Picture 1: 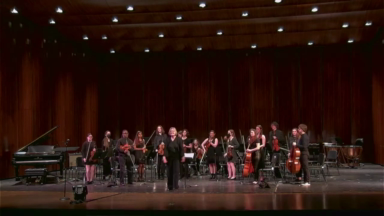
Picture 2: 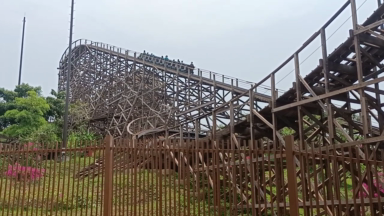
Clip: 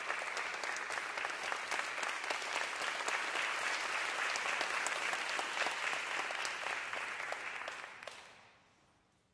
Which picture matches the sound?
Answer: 1